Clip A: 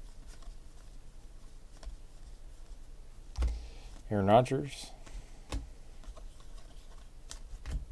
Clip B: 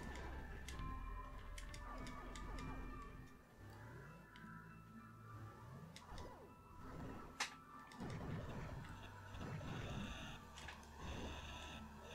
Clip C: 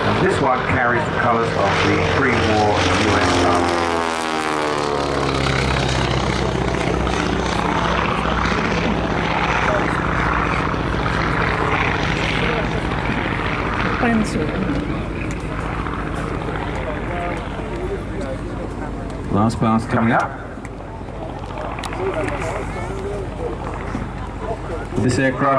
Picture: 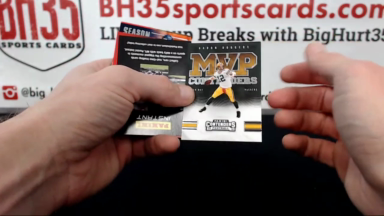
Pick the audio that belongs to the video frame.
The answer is A